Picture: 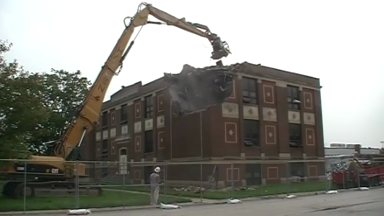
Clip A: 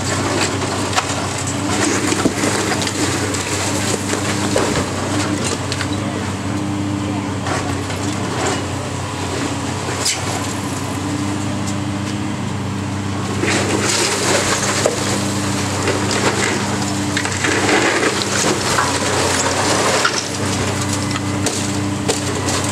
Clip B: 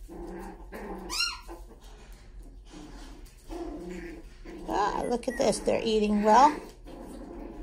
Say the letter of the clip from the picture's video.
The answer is A